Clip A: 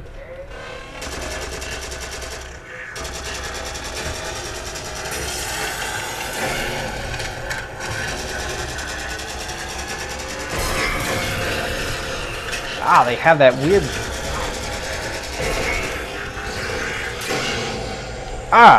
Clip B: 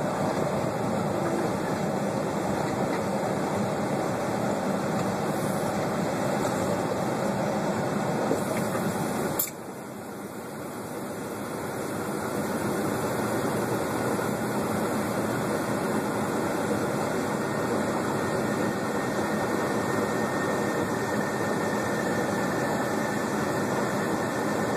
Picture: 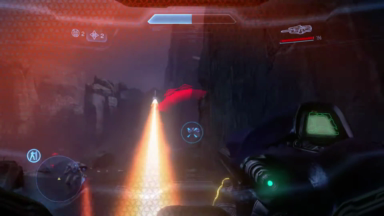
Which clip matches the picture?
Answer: A